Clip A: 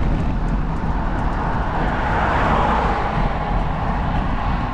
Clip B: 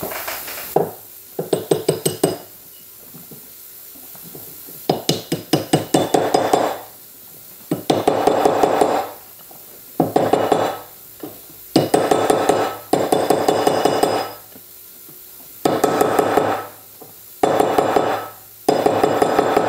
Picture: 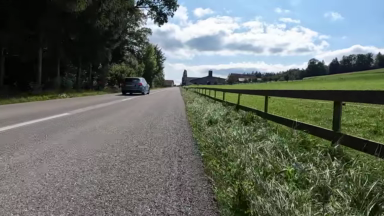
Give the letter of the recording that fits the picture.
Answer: A